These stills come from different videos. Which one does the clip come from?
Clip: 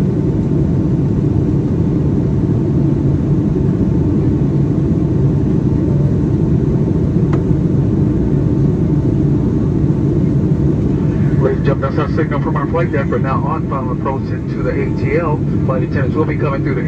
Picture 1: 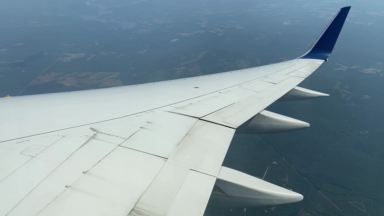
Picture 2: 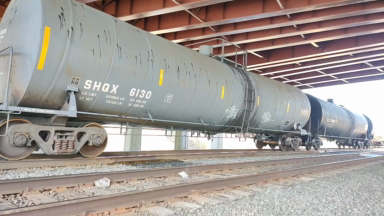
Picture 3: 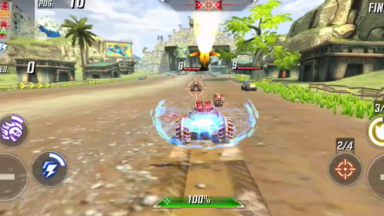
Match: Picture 1